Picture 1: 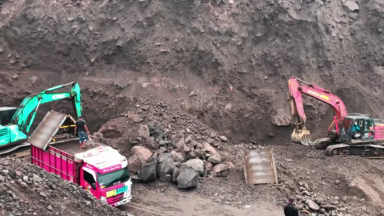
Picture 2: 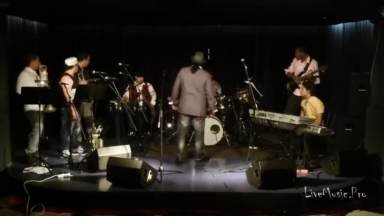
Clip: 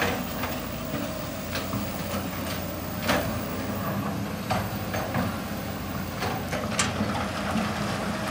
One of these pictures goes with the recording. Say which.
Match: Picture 1